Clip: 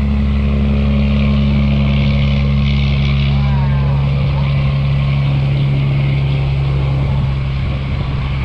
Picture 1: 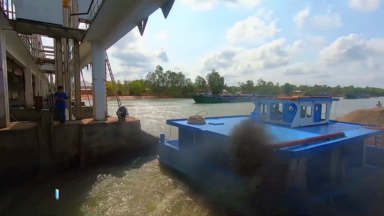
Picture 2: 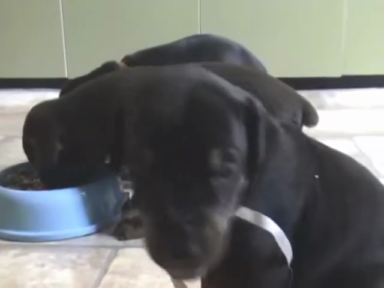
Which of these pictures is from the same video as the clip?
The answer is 1